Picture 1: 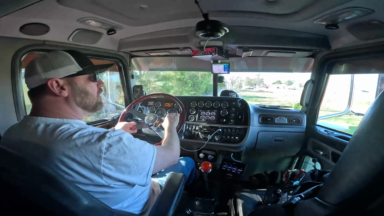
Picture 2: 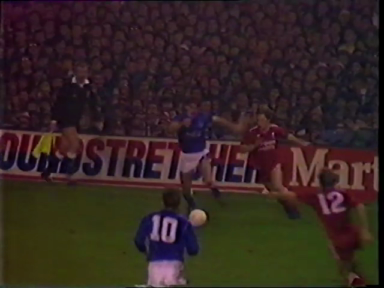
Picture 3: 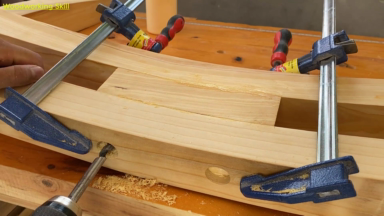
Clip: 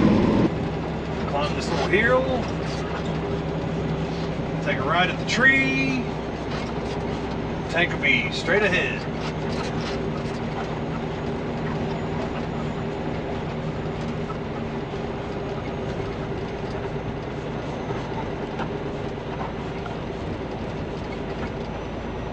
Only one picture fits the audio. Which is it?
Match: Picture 1